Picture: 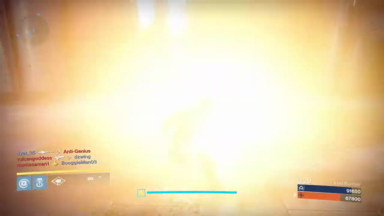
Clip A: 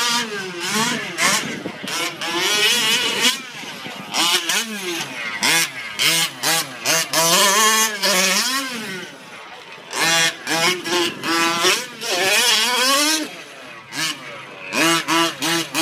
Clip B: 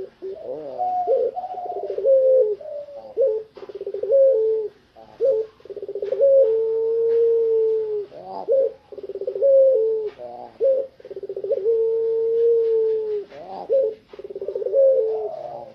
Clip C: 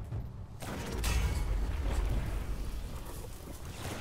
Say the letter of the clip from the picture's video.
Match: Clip C